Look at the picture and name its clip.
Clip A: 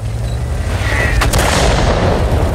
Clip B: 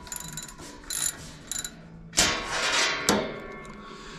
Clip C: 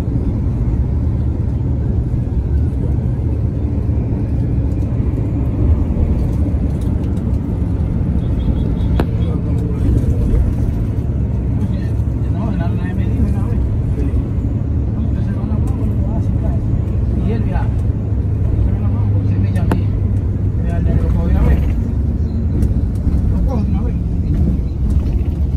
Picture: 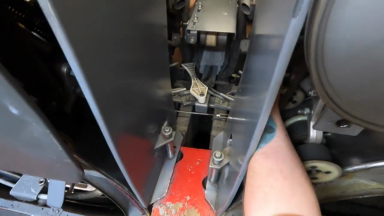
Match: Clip B